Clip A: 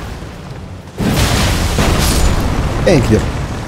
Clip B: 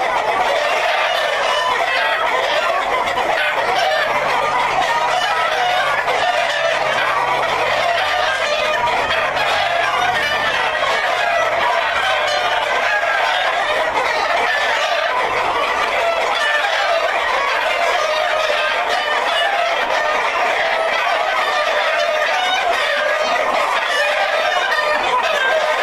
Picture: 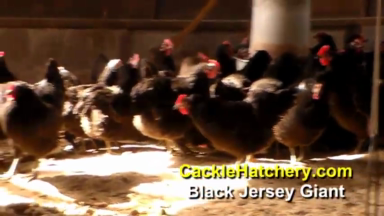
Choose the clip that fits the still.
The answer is B